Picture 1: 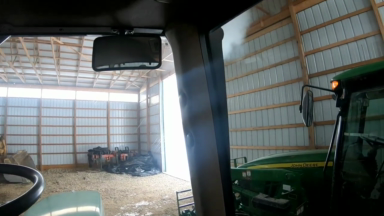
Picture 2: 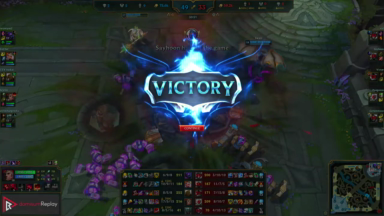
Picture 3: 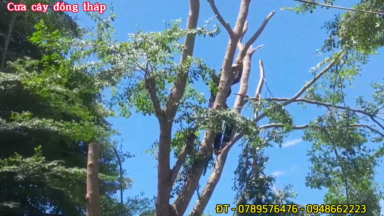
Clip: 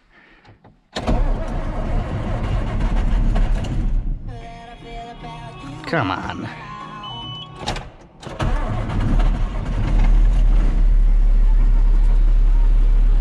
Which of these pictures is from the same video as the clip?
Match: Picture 1